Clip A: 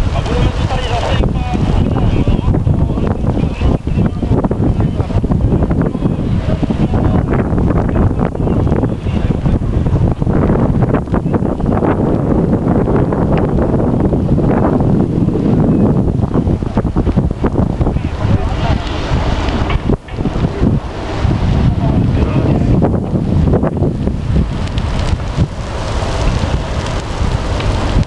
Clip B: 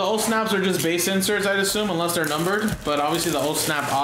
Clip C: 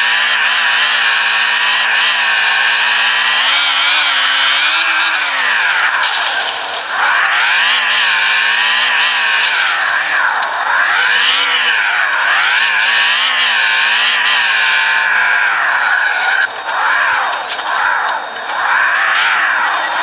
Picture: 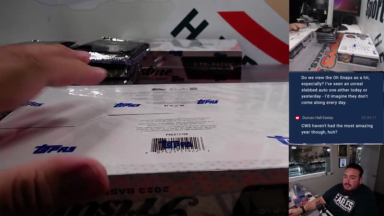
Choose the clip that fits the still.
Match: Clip B